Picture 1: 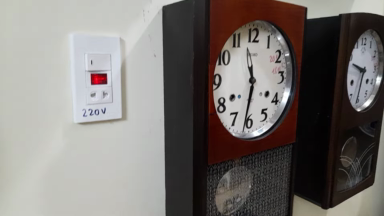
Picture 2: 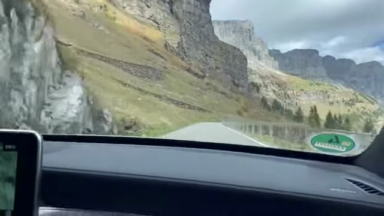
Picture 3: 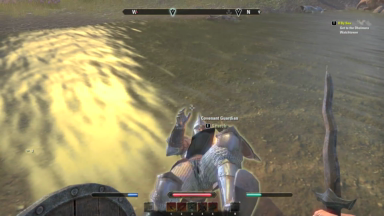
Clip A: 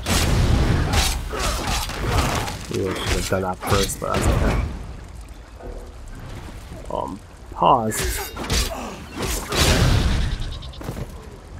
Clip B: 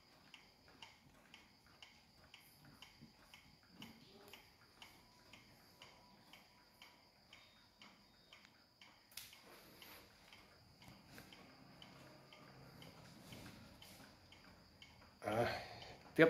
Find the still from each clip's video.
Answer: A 3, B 1